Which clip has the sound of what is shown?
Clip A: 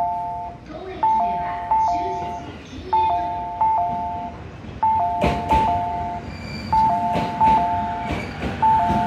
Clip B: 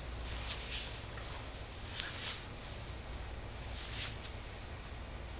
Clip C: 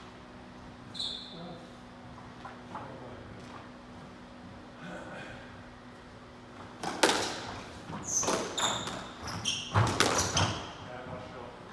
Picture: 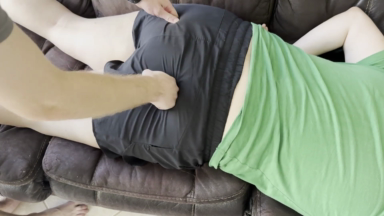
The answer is B